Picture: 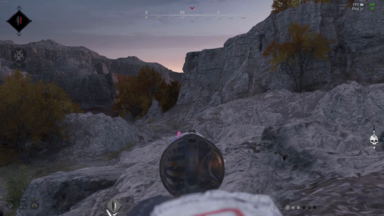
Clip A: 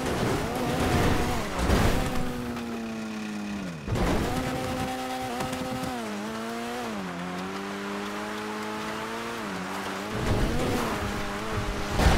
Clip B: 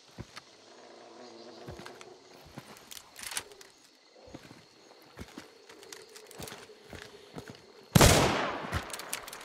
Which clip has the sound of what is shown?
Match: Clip B